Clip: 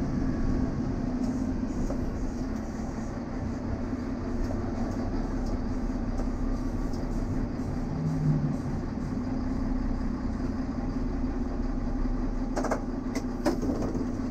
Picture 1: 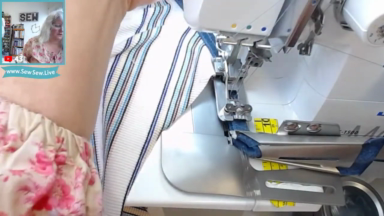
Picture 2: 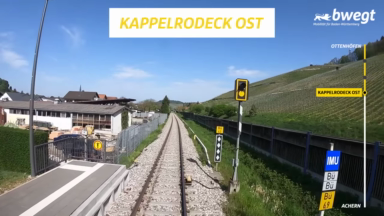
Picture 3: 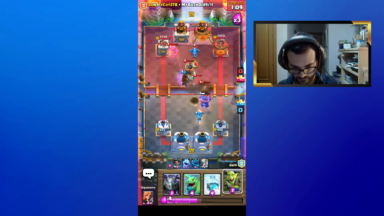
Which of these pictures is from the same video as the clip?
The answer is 2